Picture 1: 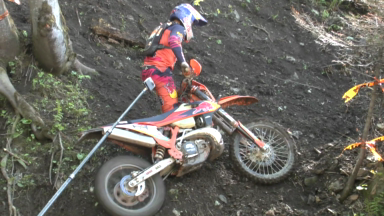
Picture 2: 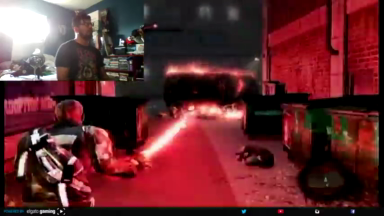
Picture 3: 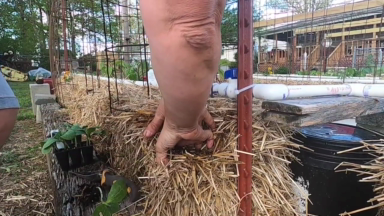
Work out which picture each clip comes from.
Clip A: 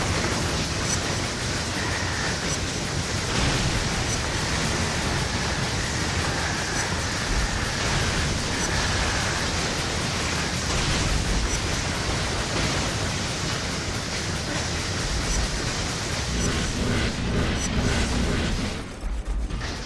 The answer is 2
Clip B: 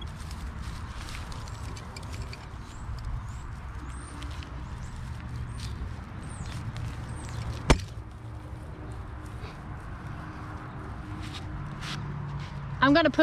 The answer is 3